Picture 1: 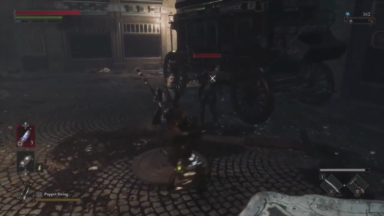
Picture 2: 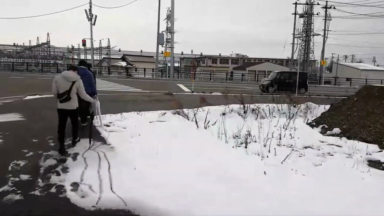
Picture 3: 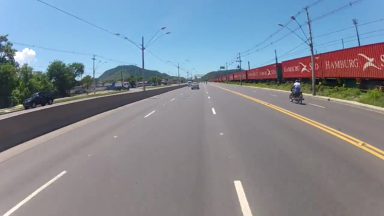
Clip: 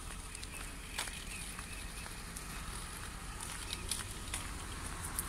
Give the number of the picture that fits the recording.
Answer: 2